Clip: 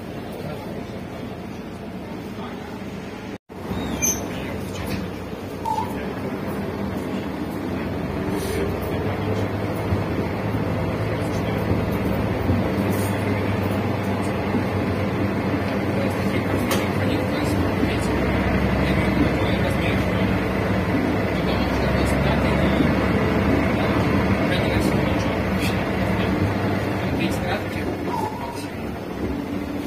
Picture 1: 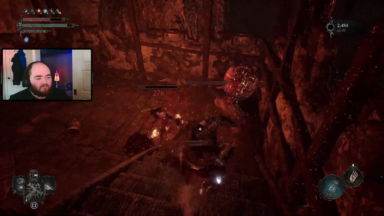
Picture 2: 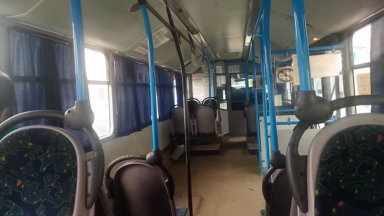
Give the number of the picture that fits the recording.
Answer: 2